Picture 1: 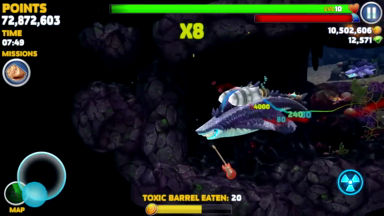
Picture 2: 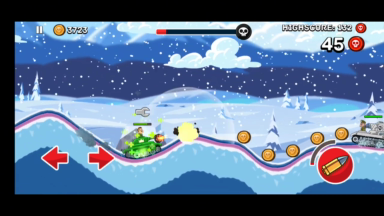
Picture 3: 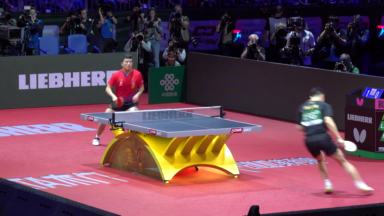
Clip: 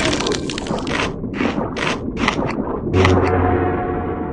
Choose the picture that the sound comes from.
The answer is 1